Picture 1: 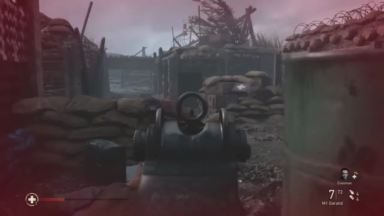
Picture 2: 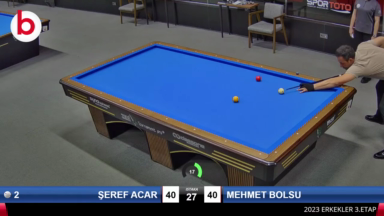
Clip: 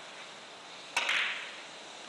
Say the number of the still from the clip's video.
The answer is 2